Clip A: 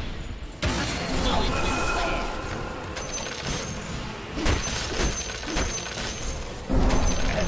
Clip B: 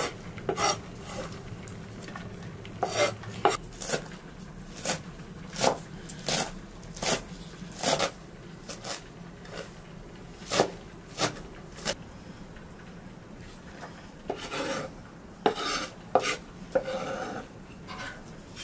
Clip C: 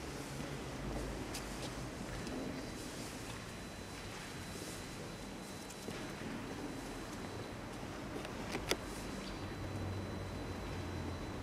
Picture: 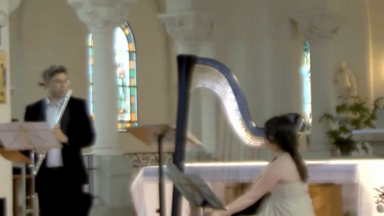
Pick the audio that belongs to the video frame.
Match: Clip C